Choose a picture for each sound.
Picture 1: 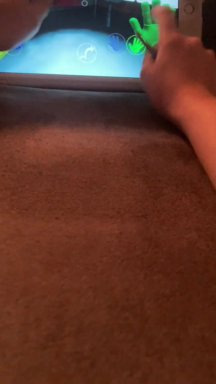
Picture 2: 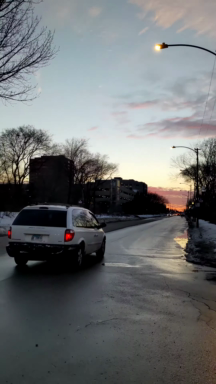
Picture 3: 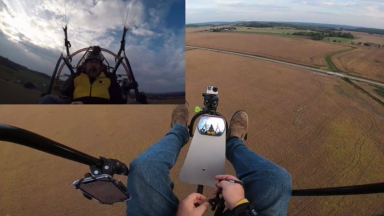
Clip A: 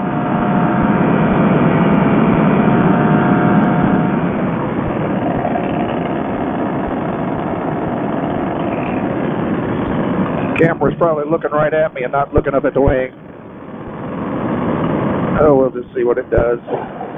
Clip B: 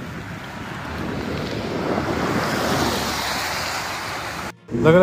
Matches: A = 3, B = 2